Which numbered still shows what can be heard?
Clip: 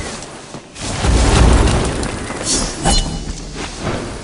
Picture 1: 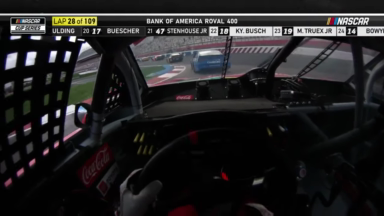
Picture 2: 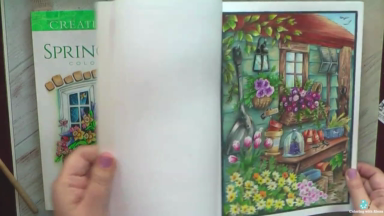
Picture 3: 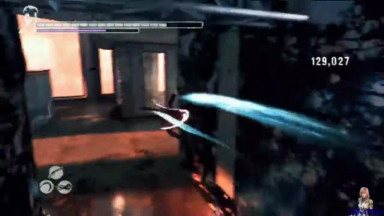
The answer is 3